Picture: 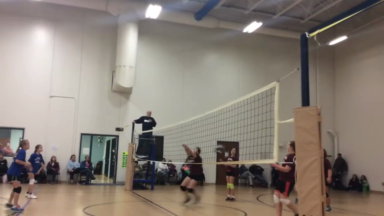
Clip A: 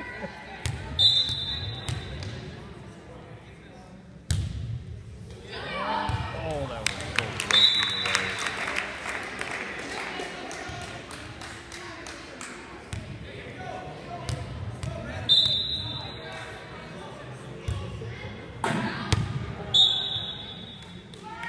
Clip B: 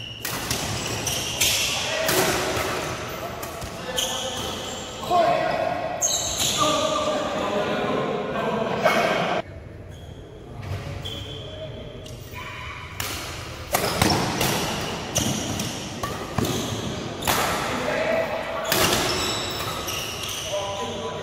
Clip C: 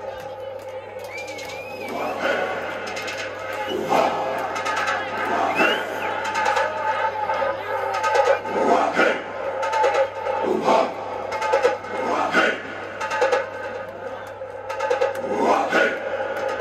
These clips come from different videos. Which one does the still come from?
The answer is A